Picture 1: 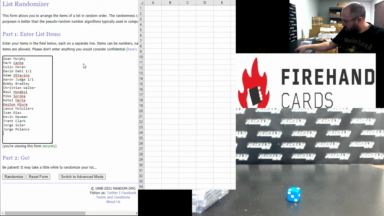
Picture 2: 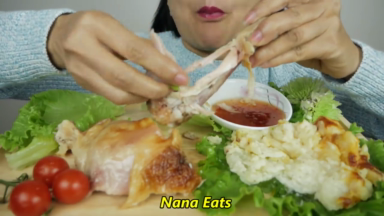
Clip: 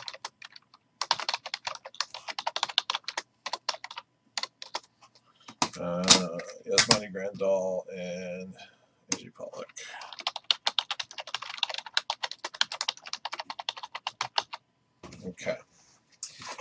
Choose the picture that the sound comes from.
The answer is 1